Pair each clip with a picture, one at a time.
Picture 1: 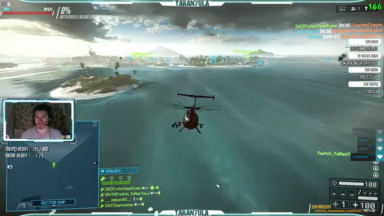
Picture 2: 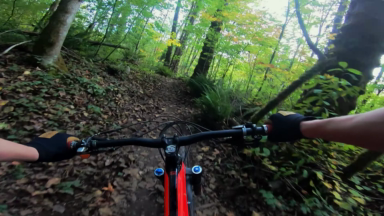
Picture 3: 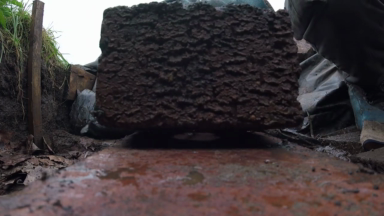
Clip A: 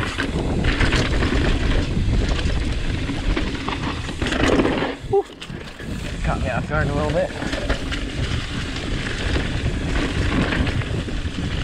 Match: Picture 2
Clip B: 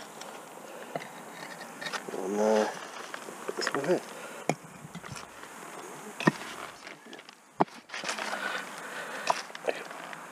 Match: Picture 3